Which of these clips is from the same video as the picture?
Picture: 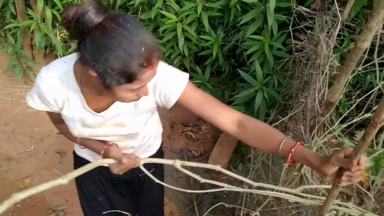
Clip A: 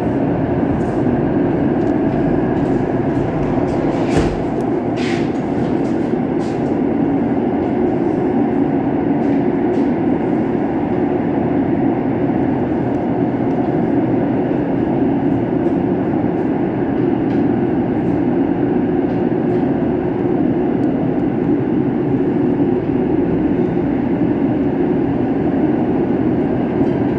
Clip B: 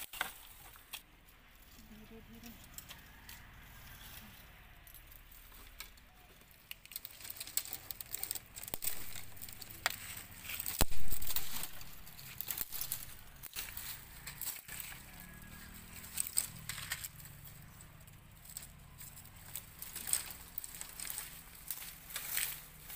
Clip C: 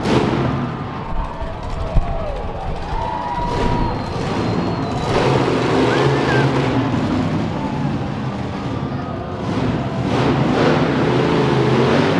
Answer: B